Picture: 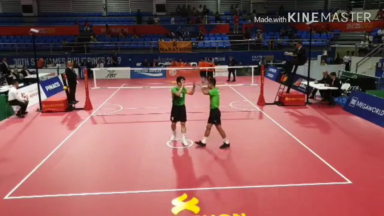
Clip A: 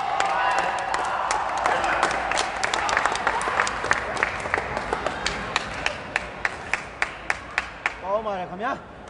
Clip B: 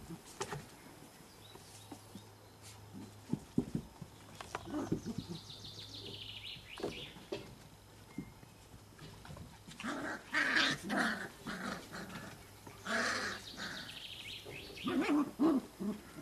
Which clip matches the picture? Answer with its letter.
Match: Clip A